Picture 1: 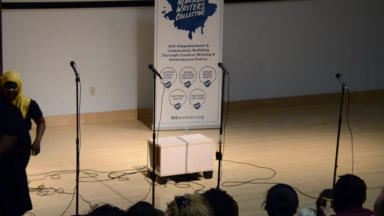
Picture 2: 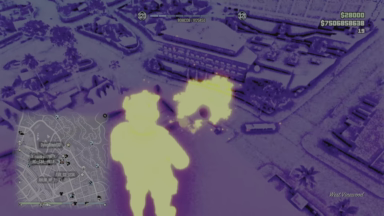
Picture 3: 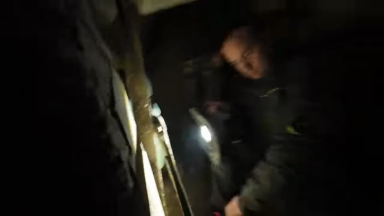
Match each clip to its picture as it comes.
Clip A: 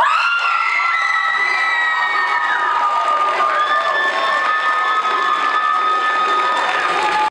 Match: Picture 1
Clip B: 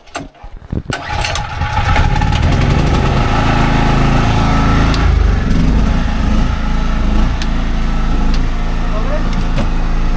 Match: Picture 3